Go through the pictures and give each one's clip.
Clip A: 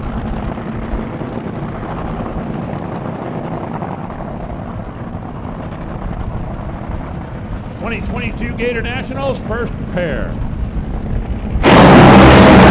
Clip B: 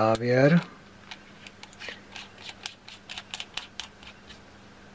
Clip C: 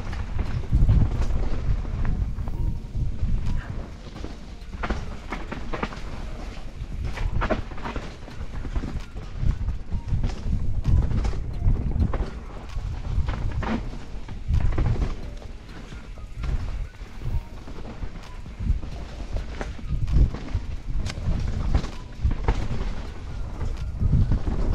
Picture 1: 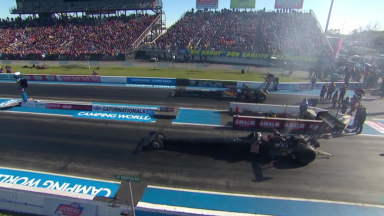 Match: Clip A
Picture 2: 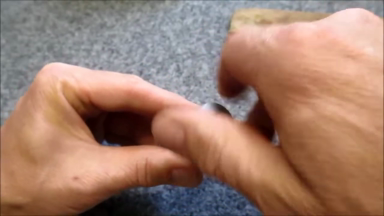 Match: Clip B